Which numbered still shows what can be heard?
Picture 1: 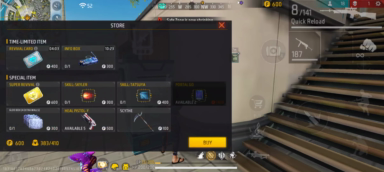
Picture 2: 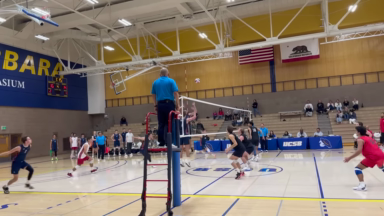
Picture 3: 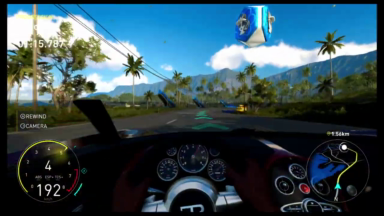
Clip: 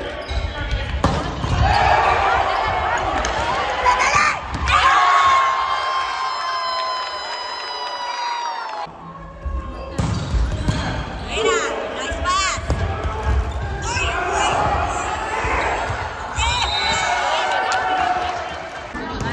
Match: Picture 2